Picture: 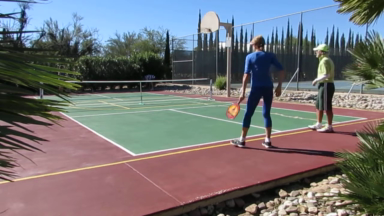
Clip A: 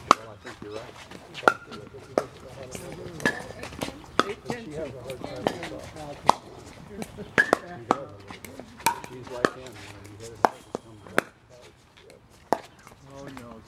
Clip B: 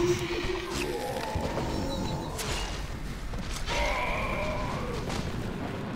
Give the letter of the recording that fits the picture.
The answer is A